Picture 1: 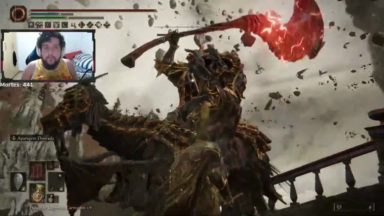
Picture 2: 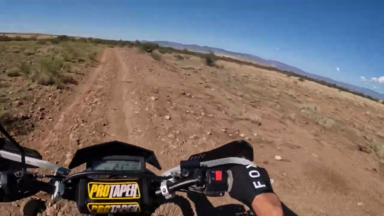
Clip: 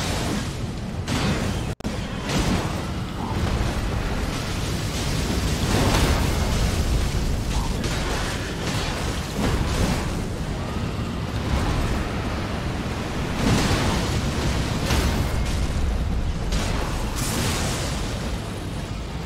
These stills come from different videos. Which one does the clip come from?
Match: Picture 1